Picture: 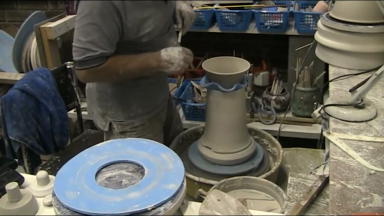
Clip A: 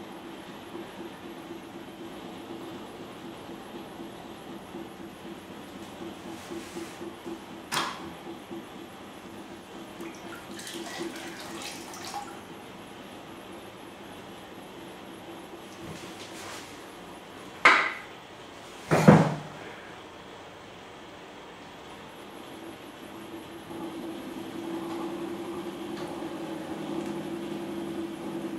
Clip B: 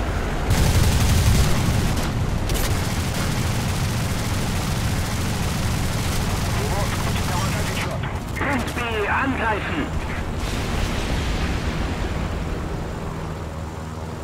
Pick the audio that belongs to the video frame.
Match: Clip A